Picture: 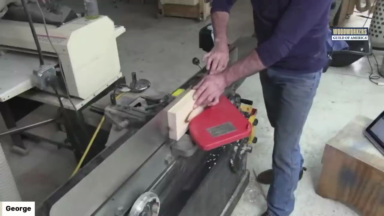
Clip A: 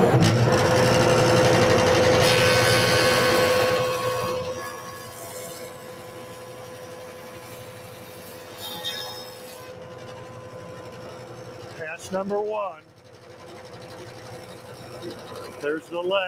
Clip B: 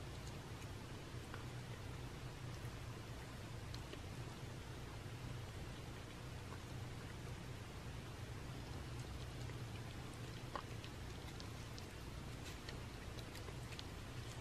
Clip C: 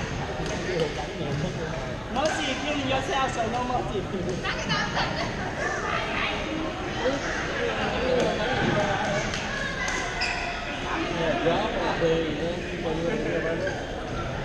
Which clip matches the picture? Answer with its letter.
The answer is A